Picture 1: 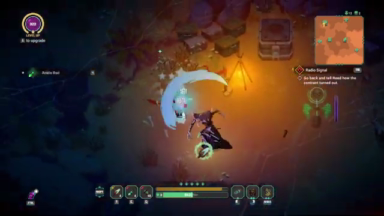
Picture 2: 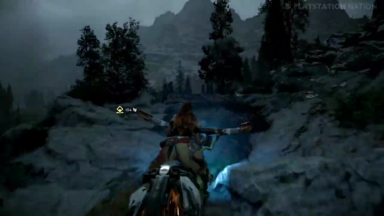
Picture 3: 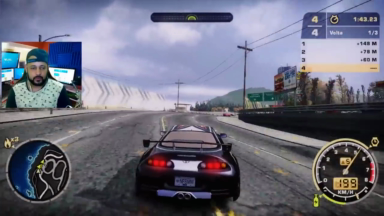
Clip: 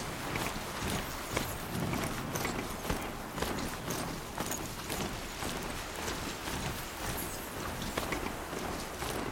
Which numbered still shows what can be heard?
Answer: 2